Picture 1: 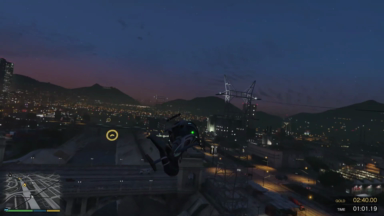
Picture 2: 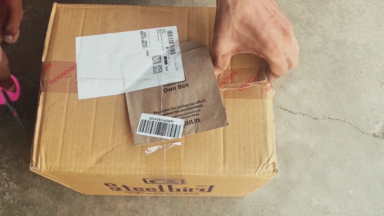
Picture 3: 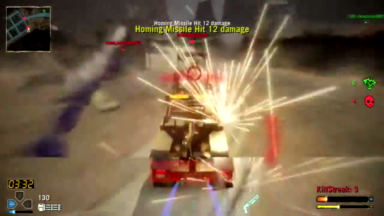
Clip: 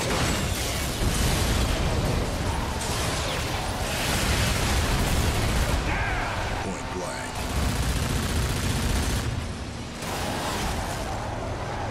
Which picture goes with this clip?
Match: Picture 3